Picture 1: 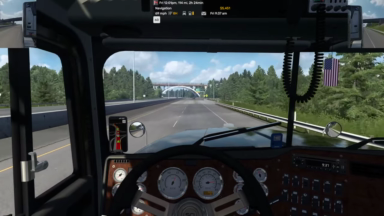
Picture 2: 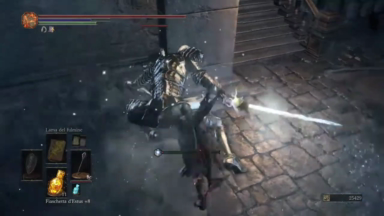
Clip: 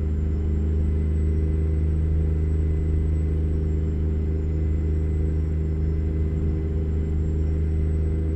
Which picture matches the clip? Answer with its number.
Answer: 1